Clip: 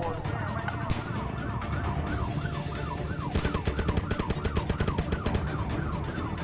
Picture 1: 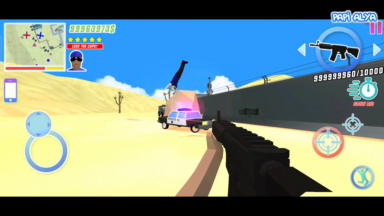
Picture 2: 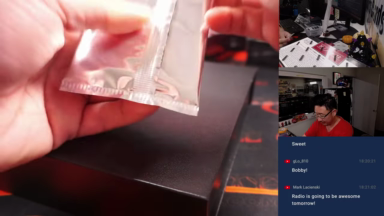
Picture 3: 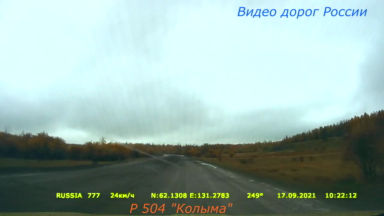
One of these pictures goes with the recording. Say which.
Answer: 1